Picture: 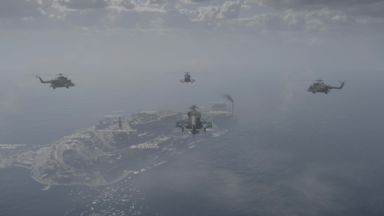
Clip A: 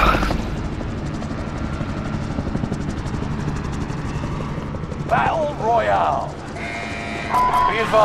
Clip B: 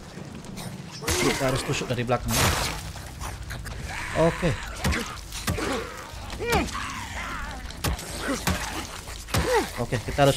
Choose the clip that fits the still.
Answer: A